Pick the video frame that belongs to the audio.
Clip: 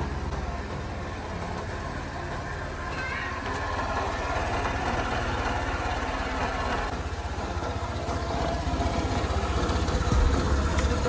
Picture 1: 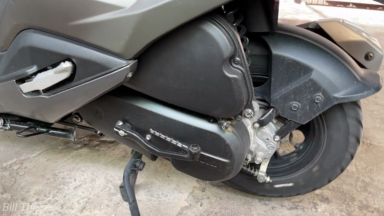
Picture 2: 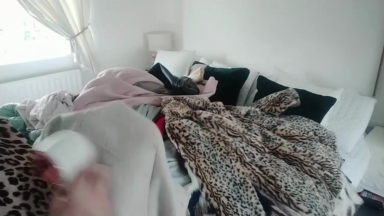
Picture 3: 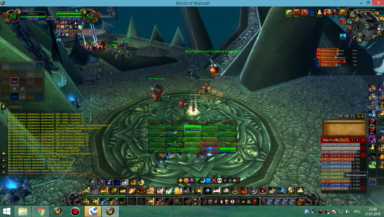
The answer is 1